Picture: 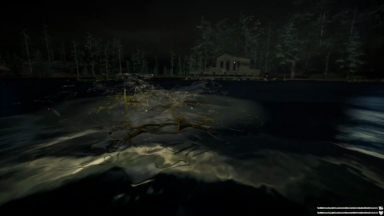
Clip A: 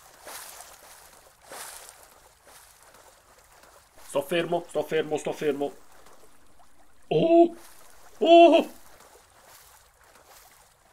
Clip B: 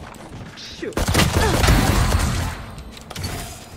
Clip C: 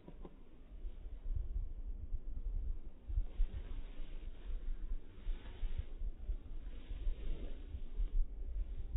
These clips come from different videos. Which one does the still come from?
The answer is A